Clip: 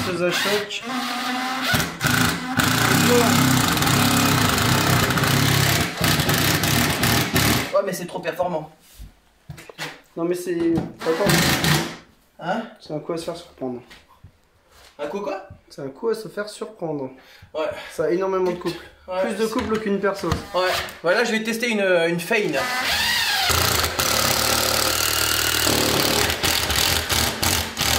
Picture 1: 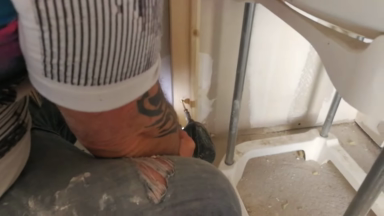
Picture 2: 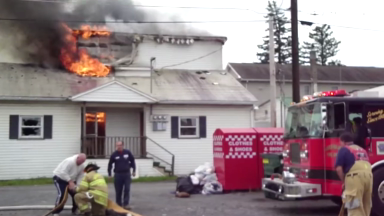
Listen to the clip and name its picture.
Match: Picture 1